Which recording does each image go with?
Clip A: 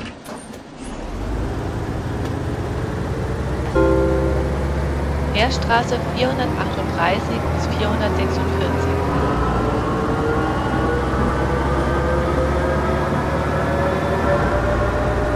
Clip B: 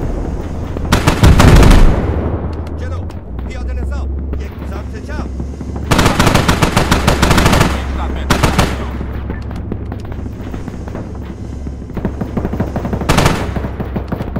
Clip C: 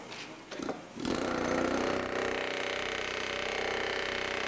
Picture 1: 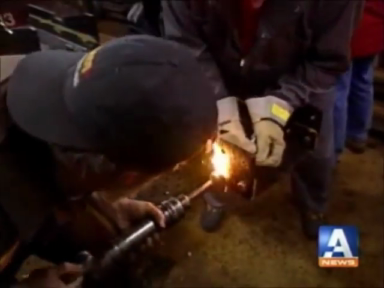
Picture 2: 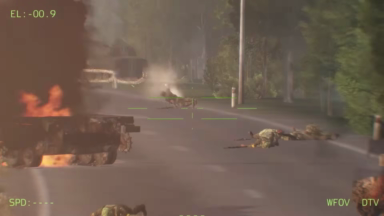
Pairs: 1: C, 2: B